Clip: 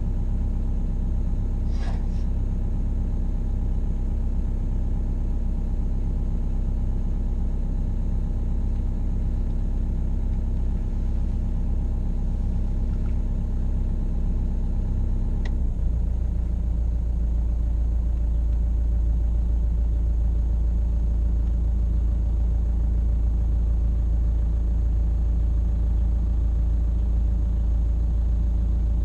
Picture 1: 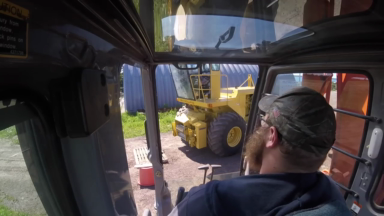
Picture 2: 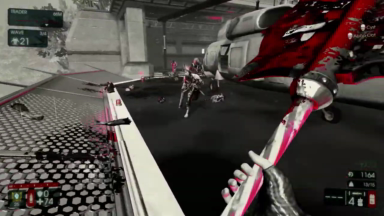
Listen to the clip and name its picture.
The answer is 1